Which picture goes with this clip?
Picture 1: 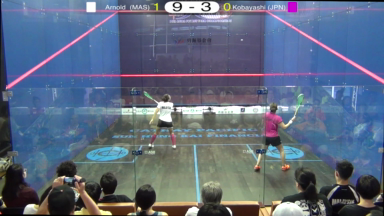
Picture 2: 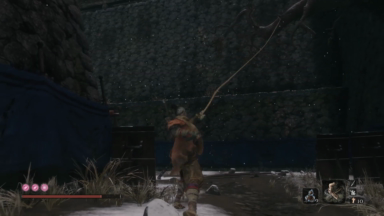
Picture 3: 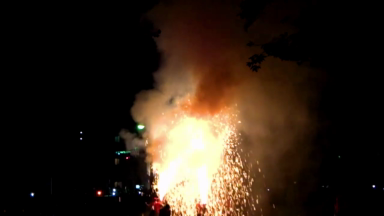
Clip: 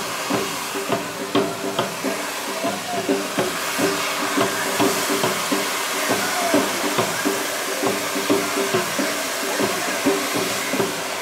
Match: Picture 3